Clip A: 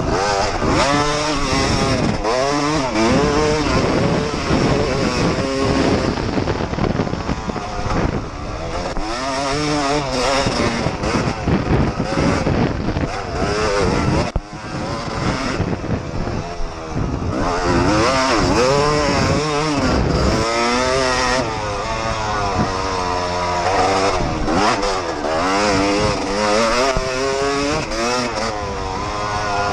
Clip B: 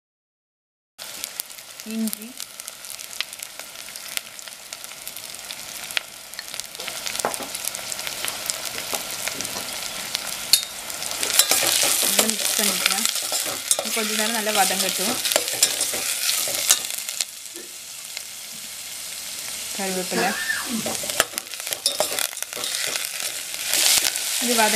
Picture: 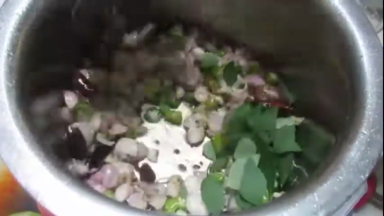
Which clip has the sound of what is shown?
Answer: B